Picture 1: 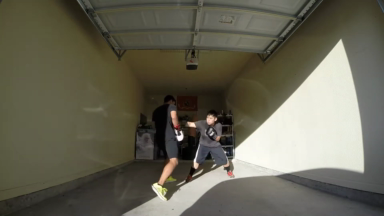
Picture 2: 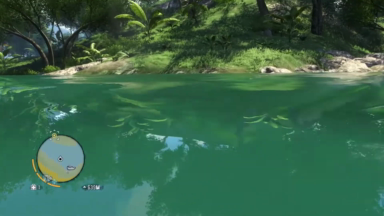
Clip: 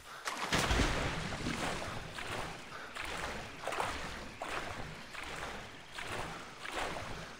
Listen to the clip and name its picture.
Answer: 2